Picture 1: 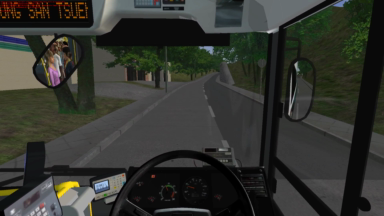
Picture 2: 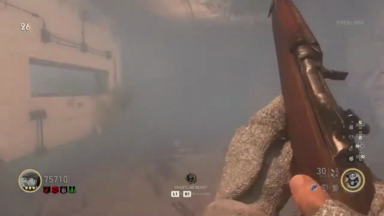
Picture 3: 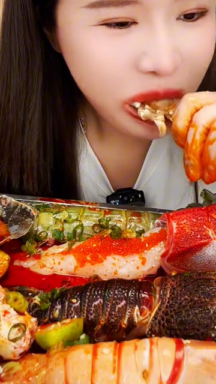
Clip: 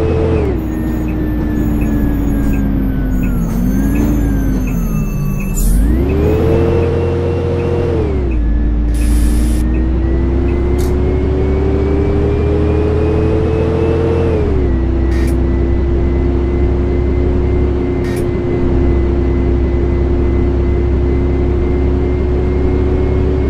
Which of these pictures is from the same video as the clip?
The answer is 1